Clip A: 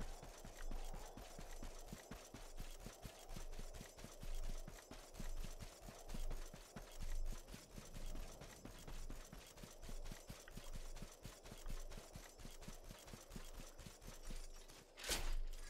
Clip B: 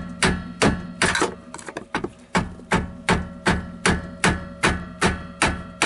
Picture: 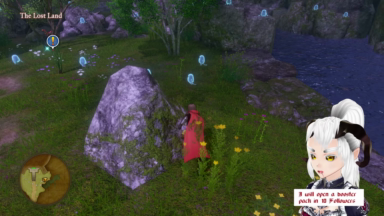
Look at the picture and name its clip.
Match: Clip A